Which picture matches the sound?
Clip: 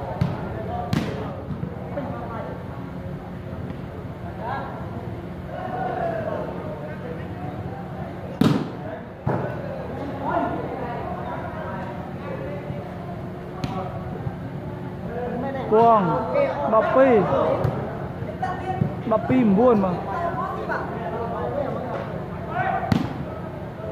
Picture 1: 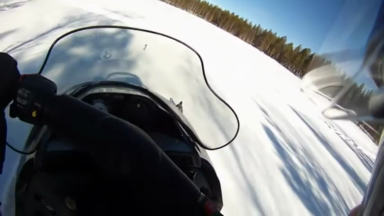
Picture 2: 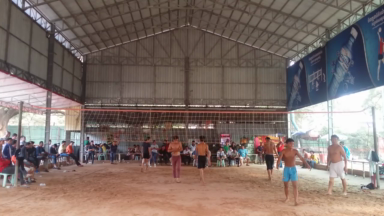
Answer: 2